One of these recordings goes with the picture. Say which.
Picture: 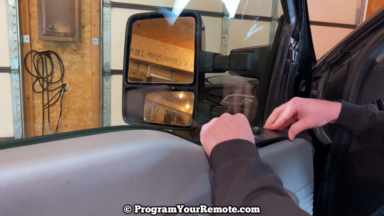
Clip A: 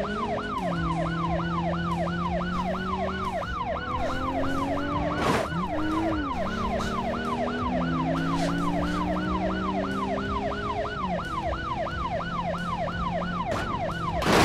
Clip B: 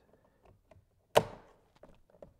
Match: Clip B